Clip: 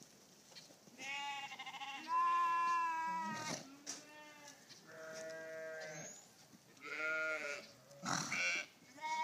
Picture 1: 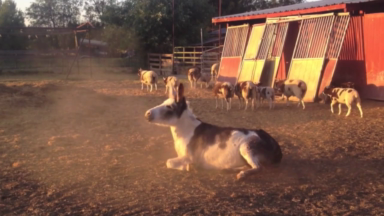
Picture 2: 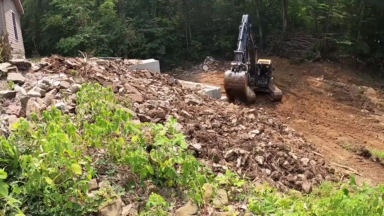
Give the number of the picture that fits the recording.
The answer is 1